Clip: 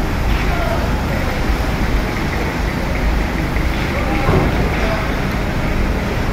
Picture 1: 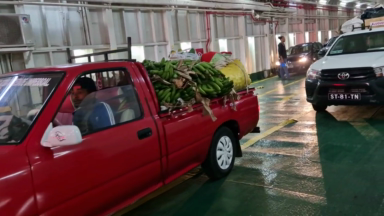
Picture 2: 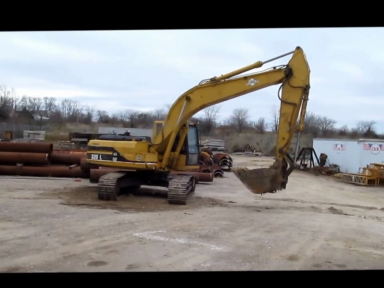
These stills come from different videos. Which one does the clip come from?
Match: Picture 1